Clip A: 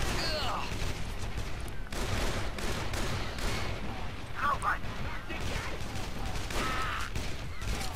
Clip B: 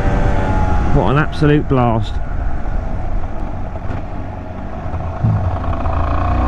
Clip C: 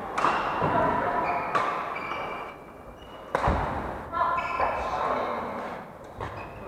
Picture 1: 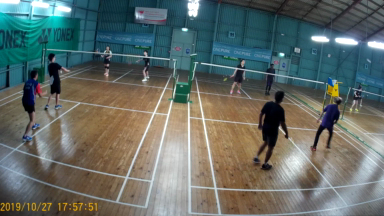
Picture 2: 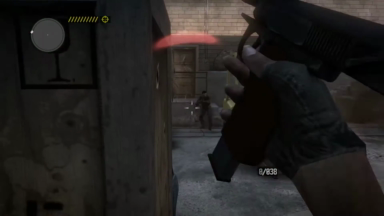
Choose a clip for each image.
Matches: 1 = C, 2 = A